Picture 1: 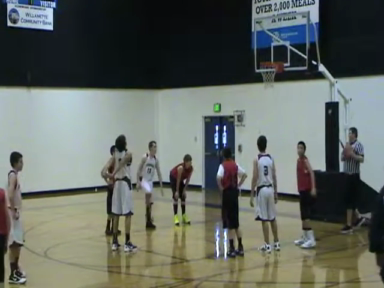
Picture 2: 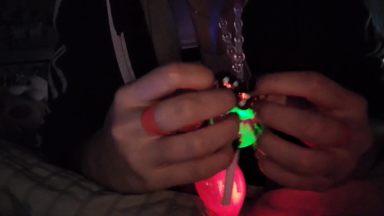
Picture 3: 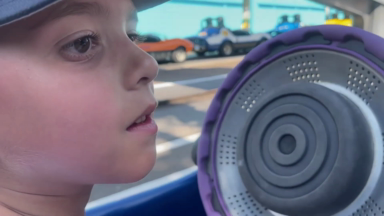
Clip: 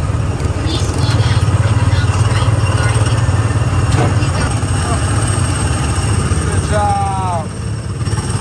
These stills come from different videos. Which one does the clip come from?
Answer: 3